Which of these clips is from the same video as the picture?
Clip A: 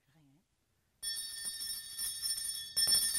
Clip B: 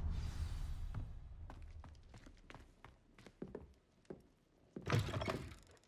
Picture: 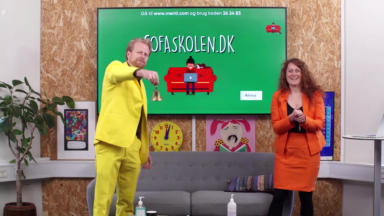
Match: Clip A